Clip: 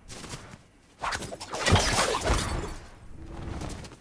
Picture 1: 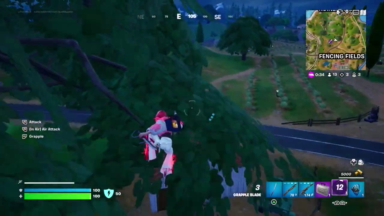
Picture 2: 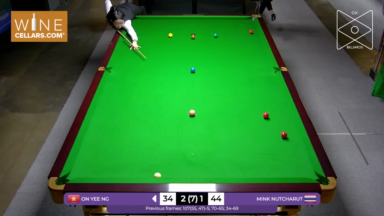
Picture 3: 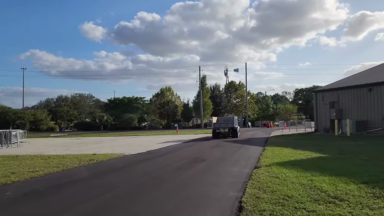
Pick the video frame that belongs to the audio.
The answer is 1